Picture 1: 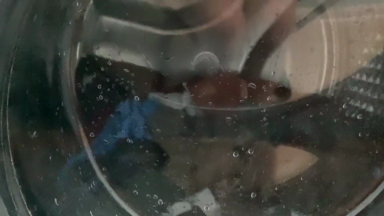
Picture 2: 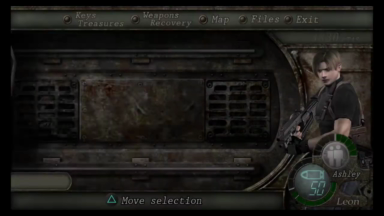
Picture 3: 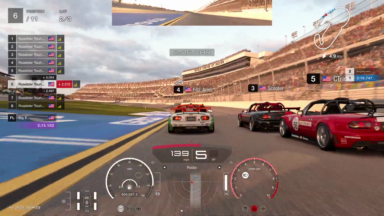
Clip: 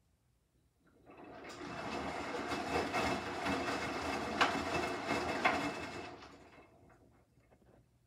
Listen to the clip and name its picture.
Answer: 1